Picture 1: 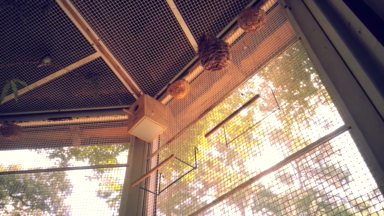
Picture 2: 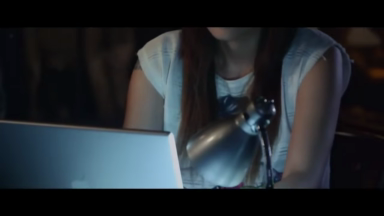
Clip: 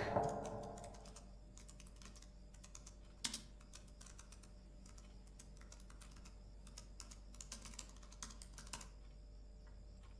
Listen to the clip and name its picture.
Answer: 2